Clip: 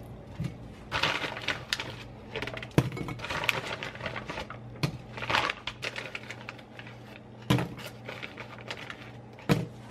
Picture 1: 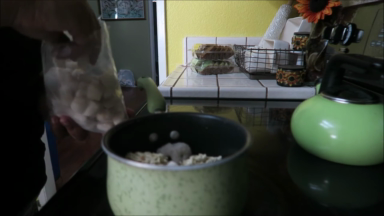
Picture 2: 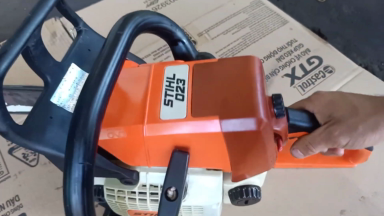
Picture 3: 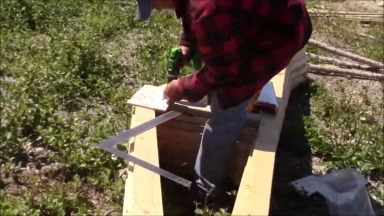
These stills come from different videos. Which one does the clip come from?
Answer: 1